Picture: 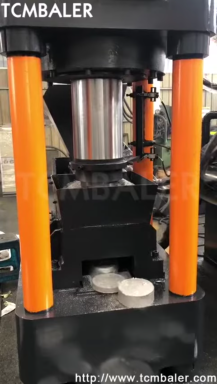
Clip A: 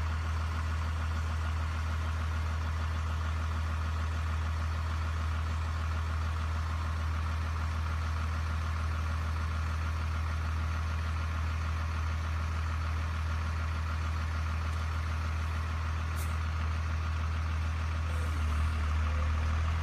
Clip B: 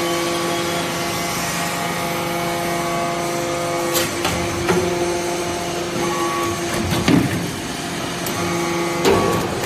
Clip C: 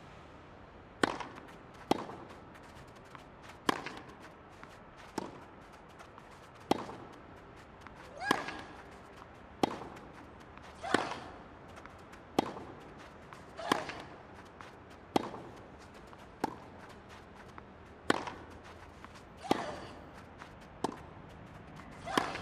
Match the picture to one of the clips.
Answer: B